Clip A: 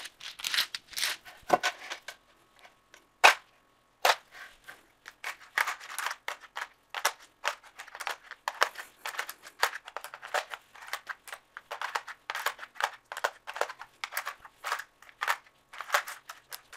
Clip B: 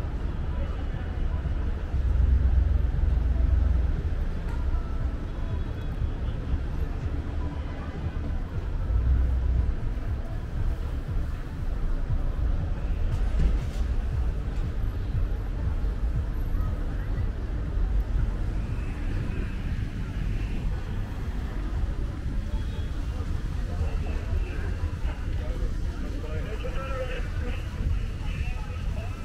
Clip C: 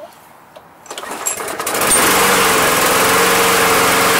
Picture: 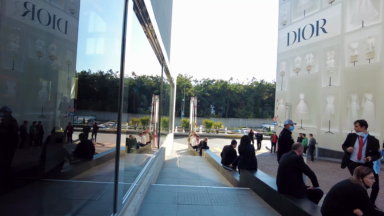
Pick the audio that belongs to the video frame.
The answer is B